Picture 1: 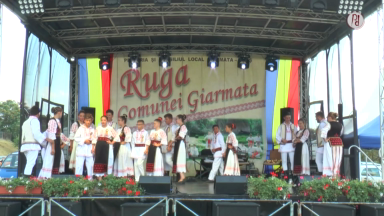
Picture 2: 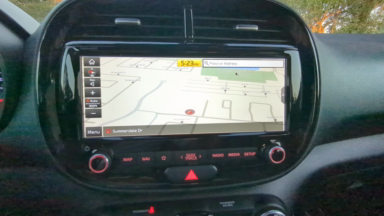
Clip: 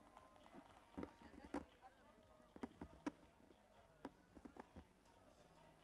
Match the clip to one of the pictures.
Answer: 1